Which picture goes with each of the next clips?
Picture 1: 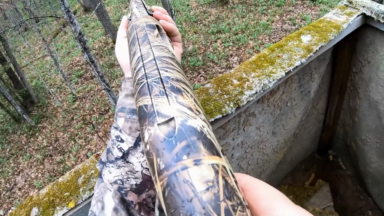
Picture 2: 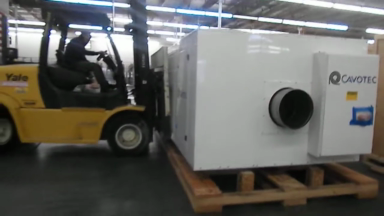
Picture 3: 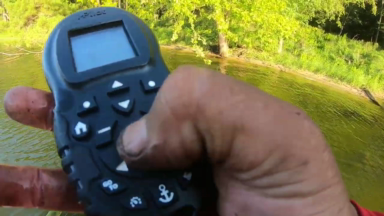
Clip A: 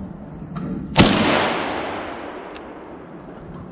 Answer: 1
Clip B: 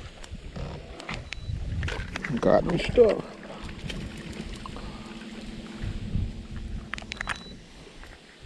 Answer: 3